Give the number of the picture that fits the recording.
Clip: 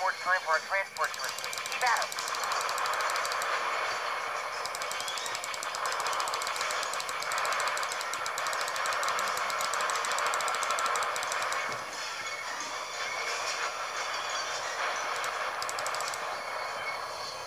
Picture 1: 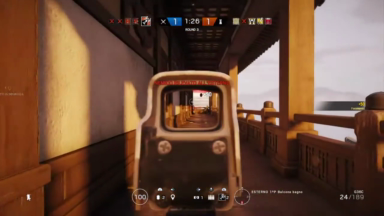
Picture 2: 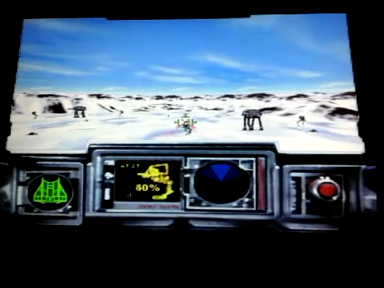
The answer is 2